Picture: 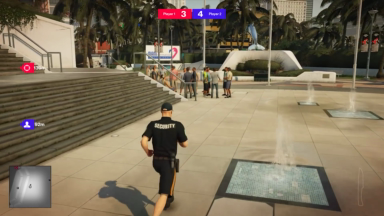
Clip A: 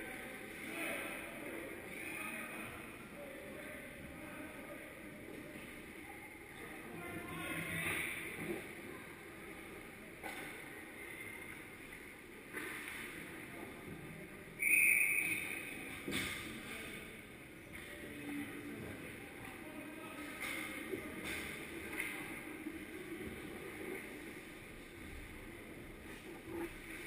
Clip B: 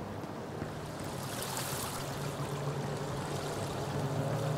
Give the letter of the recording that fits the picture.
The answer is B